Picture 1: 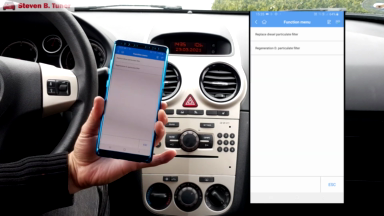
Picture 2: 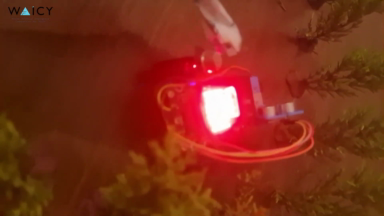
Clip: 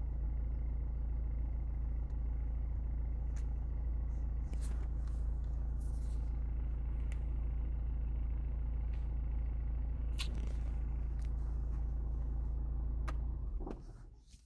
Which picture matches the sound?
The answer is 1